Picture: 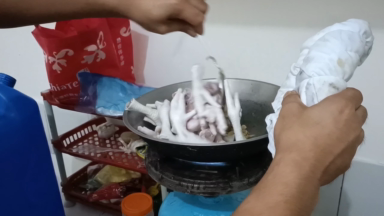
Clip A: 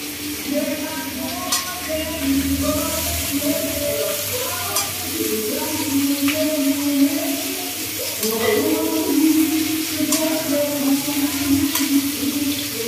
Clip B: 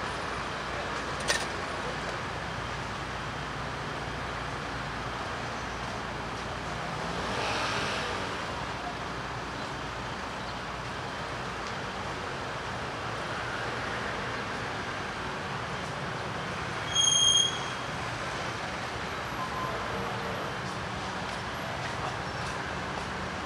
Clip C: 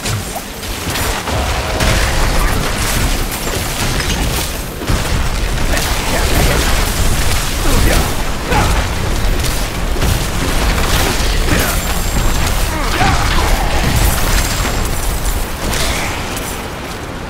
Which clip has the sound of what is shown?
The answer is A